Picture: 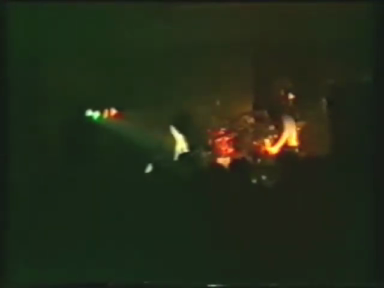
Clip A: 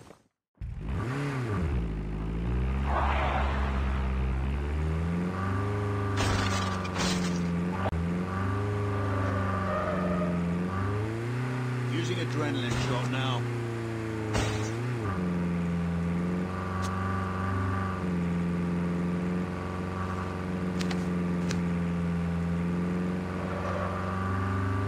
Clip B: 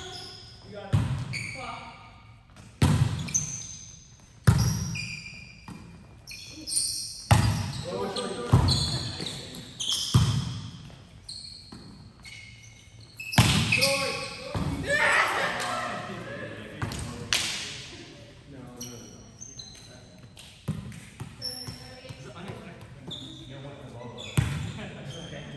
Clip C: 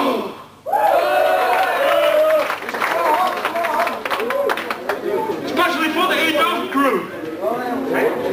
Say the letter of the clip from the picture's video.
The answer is C